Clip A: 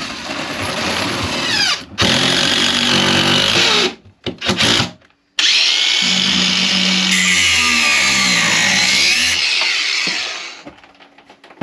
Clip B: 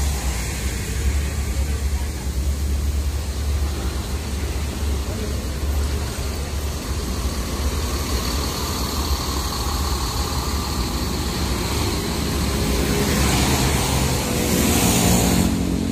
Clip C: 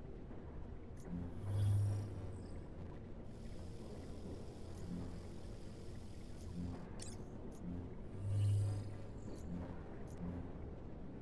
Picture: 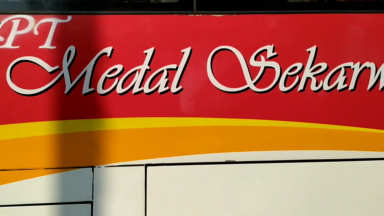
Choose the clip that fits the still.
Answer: B